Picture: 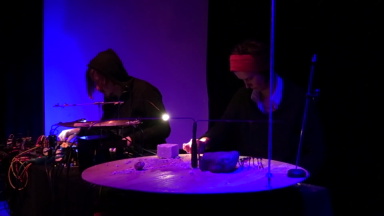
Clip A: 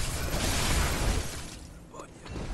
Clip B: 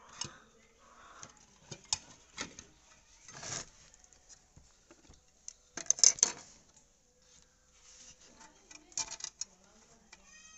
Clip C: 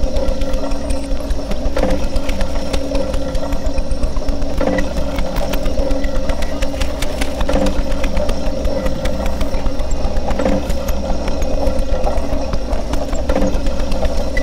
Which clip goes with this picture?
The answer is C